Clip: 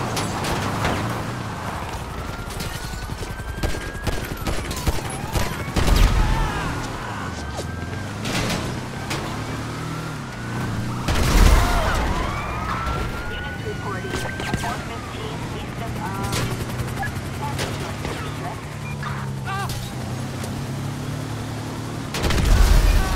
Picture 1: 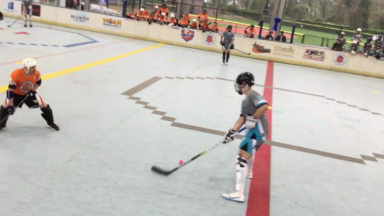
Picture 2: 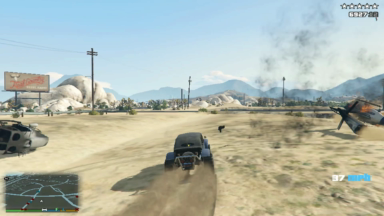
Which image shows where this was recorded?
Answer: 2